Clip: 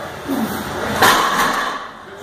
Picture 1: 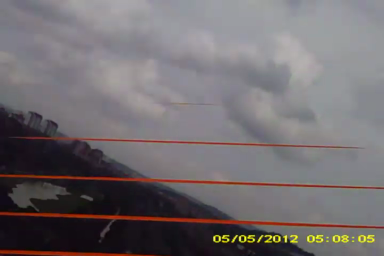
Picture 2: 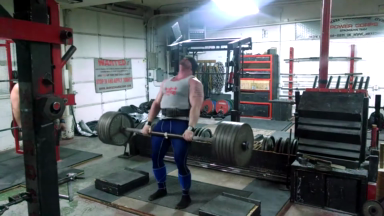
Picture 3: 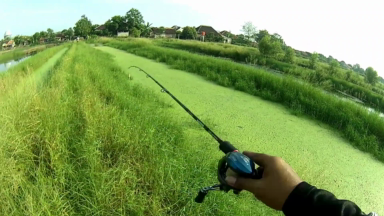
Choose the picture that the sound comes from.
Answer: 2